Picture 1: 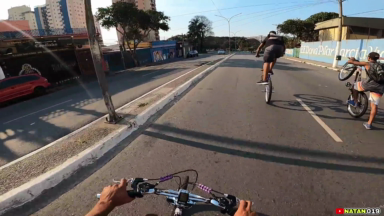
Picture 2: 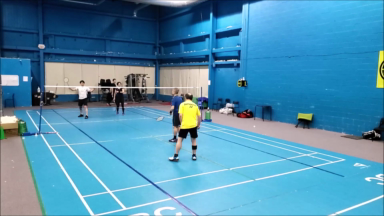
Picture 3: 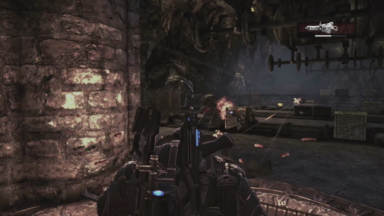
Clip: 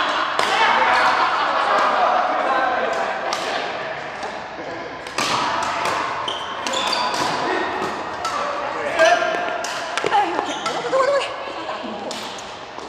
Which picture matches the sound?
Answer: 2